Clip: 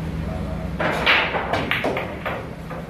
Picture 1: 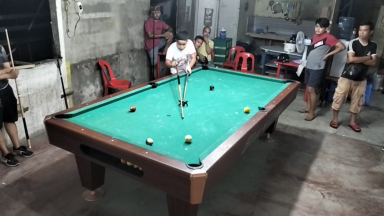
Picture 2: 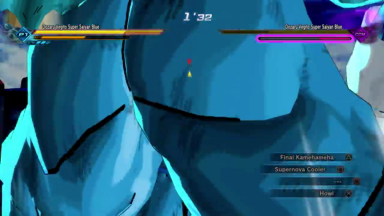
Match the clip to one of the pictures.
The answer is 1